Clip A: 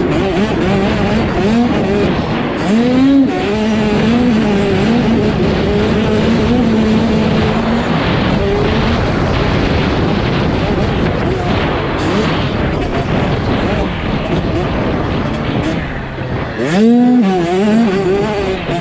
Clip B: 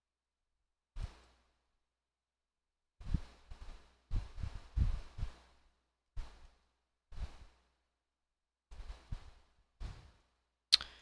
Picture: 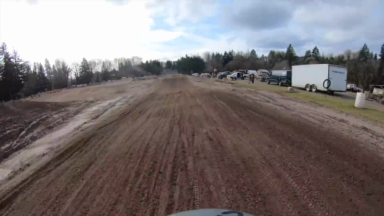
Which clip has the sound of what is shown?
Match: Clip A